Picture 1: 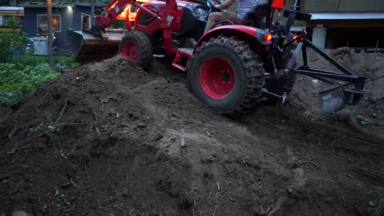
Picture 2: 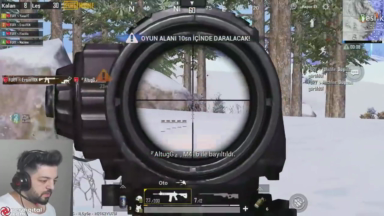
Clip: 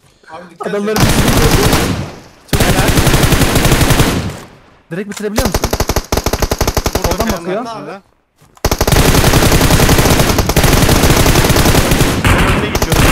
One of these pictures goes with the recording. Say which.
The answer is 2